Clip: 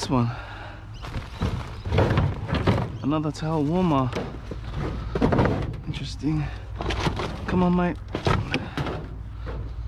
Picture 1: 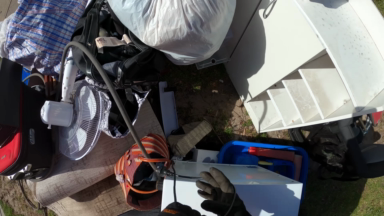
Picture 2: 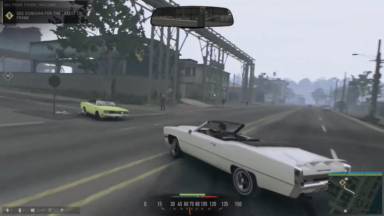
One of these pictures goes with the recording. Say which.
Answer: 1